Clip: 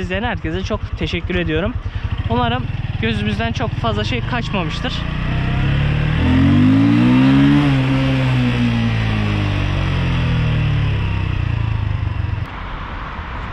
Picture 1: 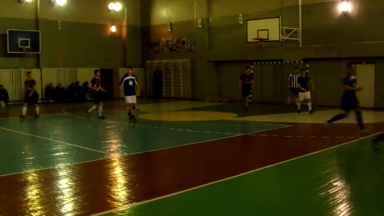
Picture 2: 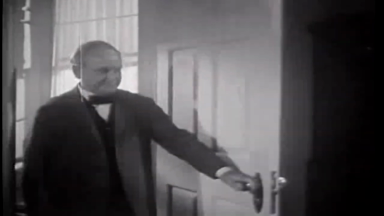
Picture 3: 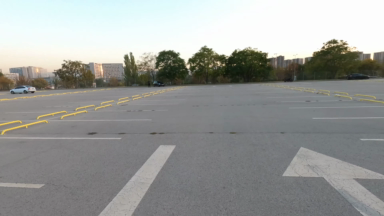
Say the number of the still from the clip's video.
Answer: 3